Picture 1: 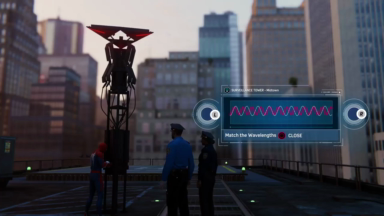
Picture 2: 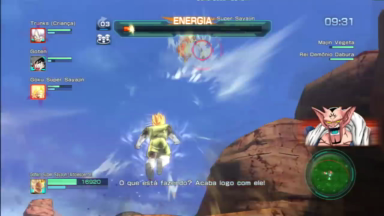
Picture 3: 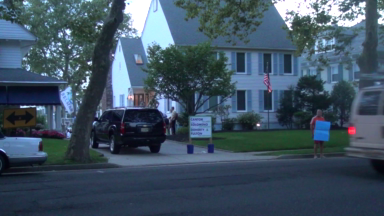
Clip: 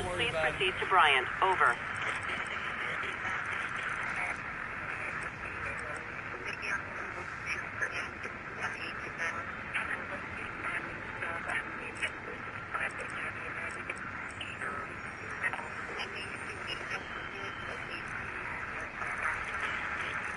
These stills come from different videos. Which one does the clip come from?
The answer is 1